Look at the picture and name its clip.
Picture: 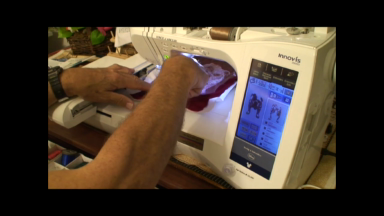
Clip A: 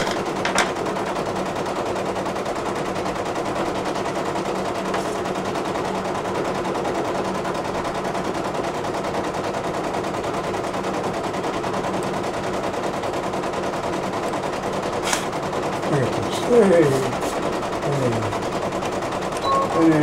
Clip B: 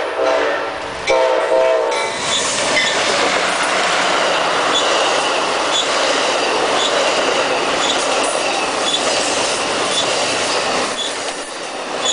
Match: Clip A